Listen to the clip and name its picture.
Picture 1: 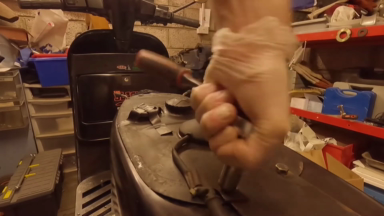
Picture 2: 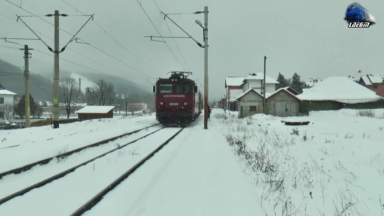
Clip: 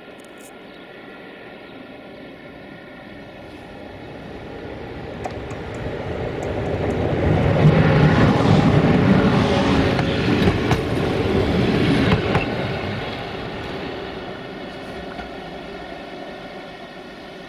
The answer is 2